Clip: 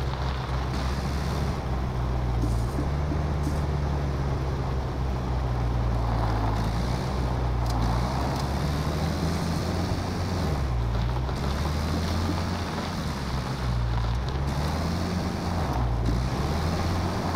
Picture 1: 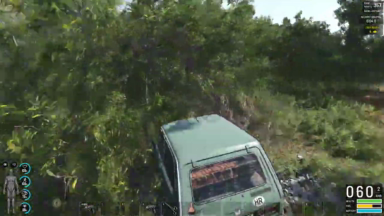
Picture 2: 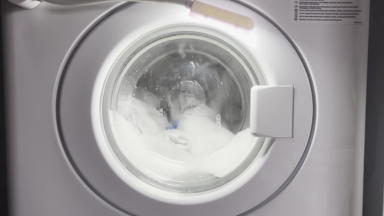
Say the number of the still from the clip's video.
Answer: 1